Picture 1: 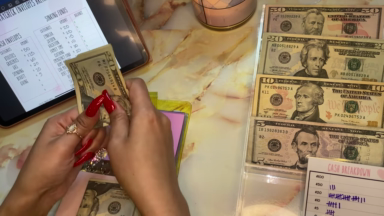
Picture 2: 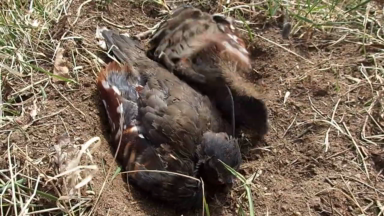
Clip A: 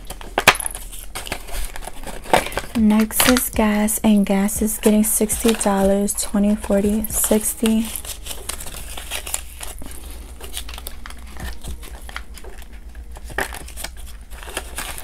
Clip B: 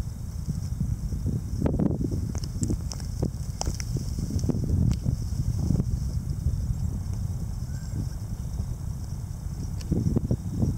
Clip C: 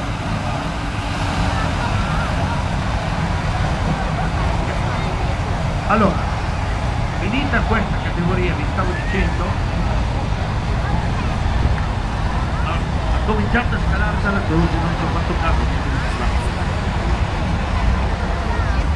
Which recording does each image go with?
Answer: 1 A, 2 B